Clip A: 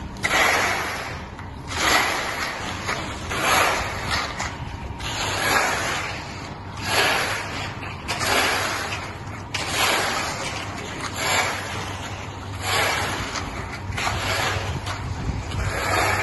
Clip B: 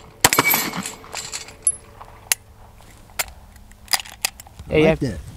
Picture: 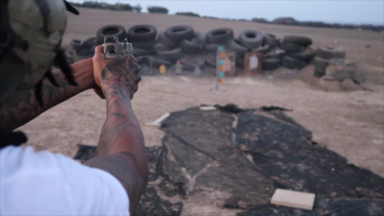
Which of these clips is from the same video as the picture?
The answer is B